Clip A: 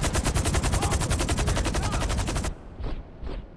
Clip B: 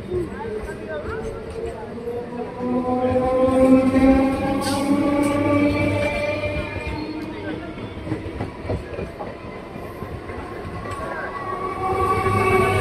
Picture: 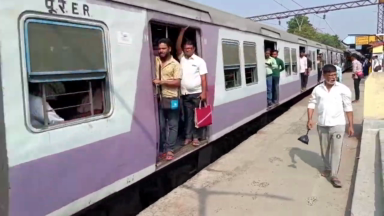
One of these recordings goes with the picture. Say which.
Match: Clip B